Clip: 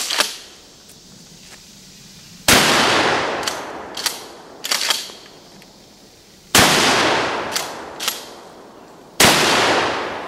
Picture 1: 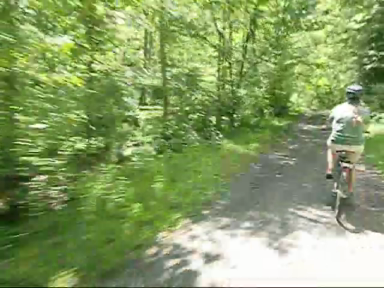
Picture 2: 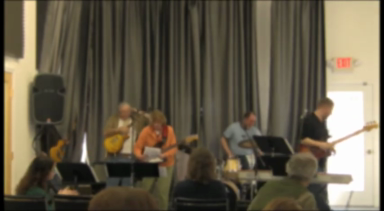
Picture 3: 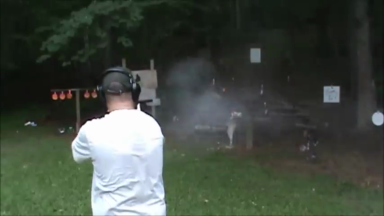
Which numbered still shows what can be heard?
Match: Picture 3